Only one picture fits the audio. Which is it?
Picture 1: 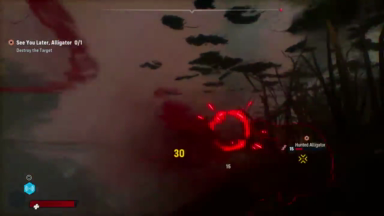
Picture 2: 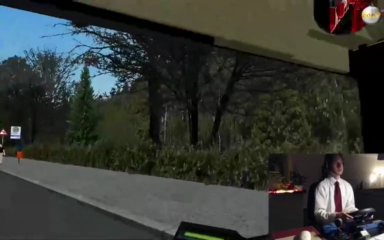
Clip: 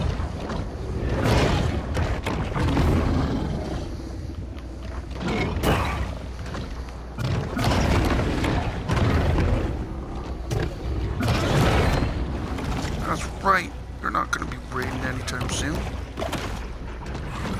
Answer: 1